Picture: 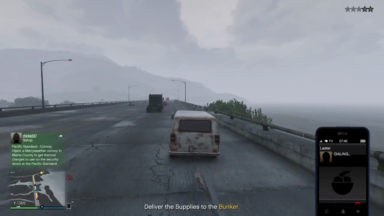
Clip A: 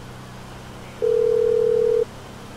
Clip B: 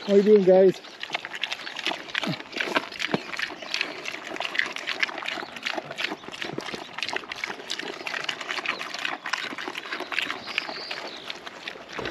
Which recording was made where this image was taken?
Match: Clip A